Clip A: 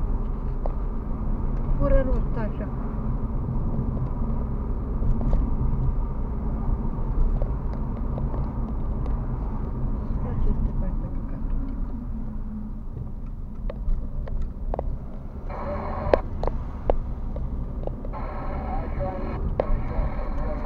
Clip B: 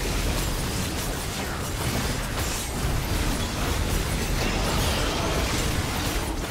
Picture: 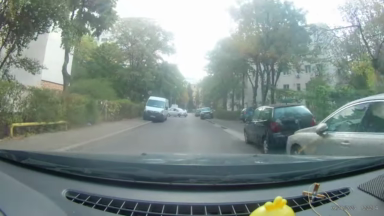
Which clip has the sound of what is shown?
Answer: A